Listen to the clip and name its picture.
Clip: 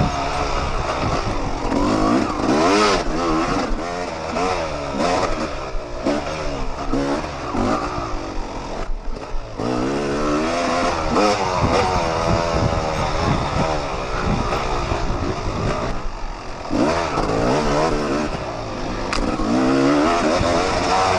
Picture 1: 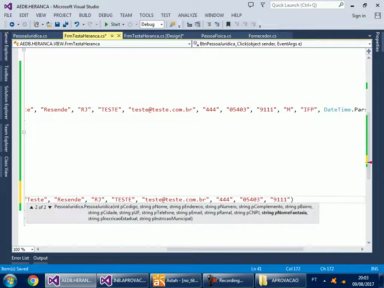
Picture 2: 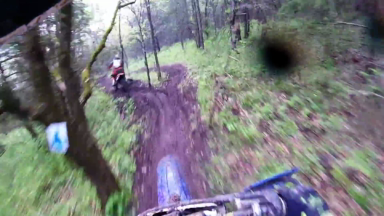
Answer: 2